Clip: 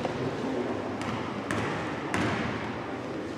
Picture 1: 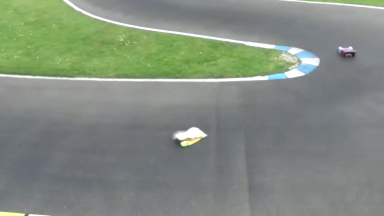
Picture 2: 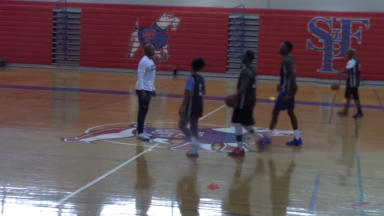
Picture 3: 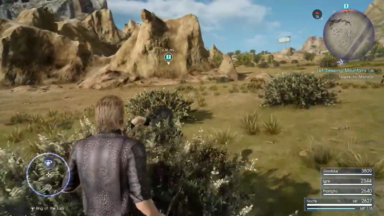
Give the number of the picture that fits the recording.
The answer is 2